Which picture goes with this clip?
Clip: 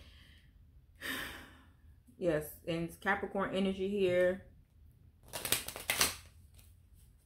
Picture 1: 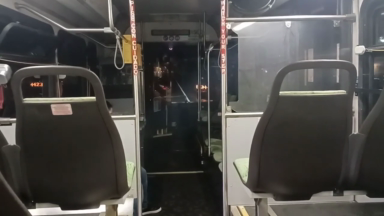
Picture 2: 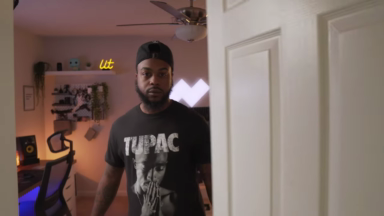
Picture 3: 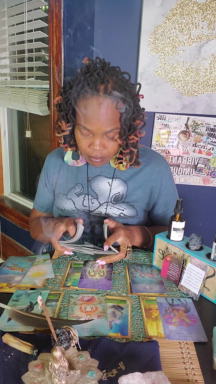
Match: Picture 3